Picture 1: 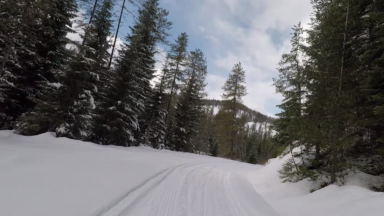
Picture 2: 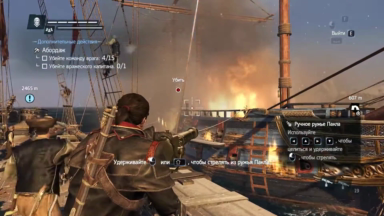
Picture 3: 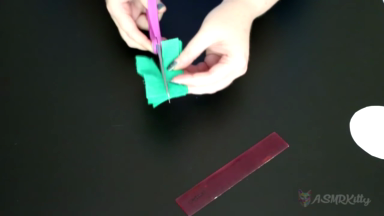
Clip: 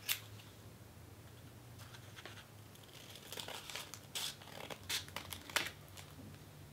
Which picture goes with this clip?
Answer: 3